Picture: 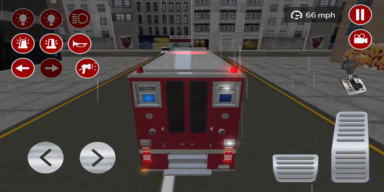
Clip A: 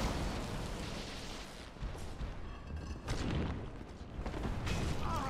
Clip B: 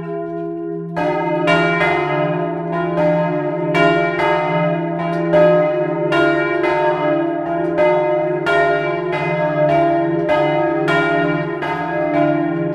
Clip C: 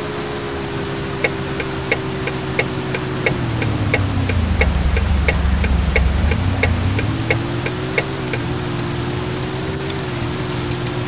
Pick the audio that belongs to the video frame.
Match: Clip C